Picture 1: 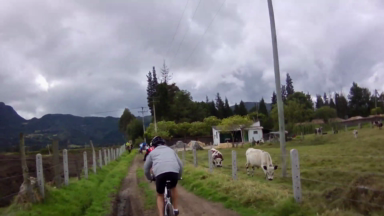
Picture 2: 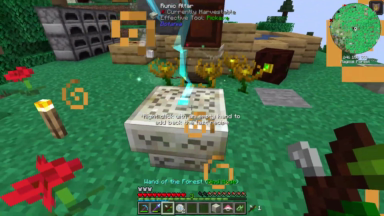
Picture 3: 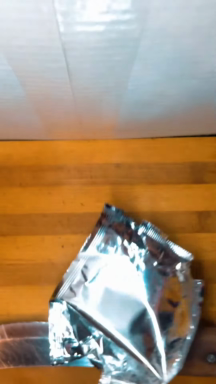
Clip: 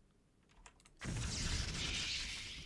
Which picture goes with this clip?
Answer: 2